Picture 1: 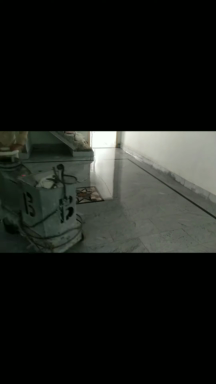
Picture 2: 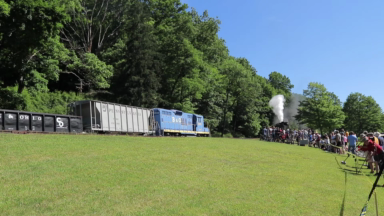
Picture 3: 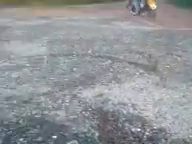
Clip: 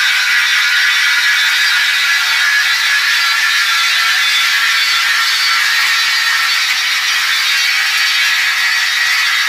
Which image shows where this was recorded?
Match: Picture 1